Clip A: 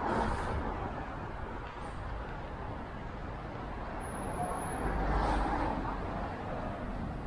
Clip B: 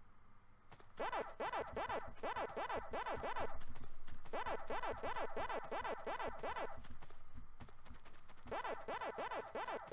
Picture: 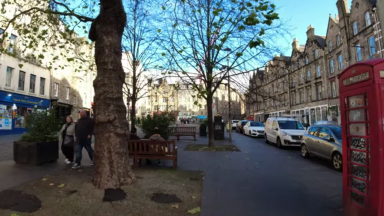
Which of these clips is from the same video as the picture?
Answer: A